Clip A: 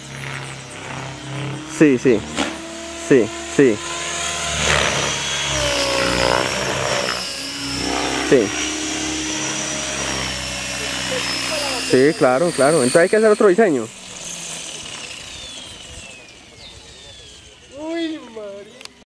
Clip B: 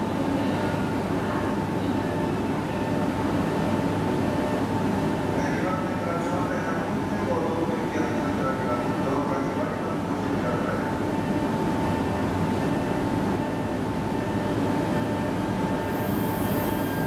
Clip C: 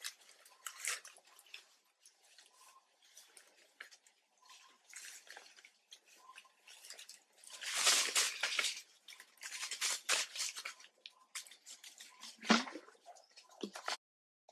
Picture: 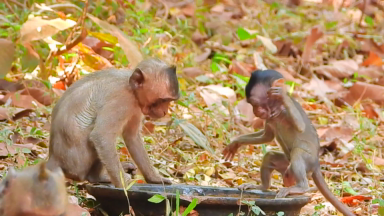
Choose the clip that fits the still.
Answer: C